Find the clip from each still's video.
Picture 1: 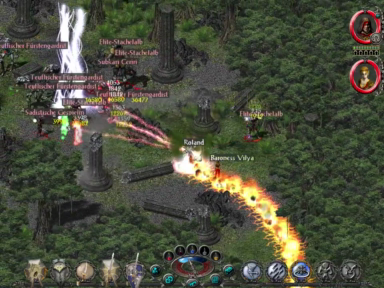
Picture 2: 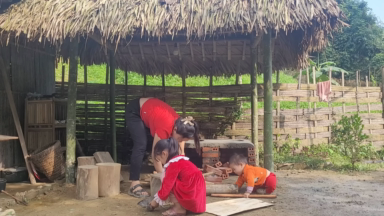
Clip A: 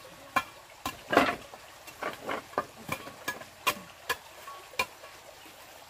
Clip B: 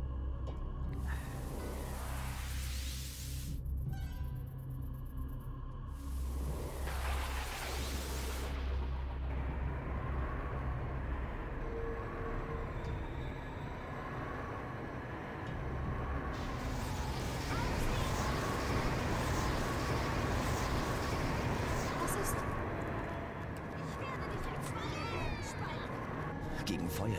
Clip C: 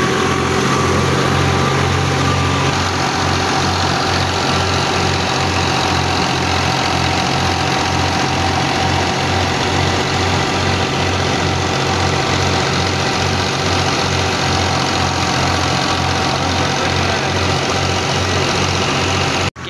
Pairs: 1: B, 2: A